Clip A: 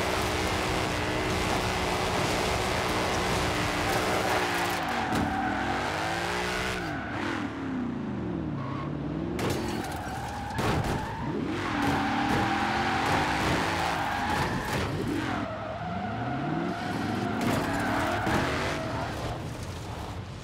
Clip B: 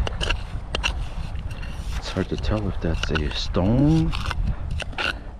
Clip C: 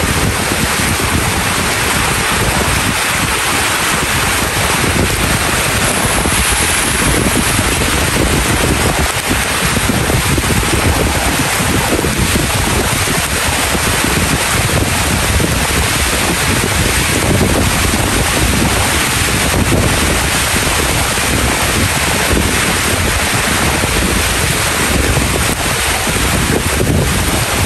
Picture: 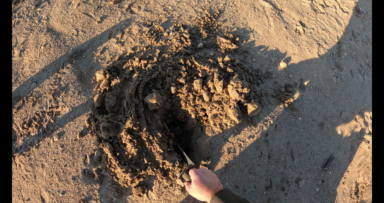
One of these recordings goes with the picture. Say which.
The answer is B